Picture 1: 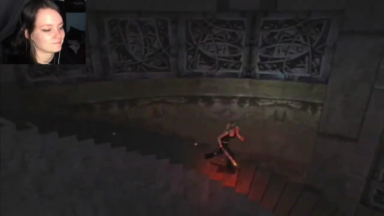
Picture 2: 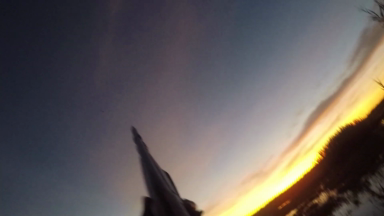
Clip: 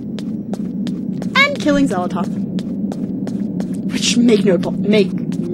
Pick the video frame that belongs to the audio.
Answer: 1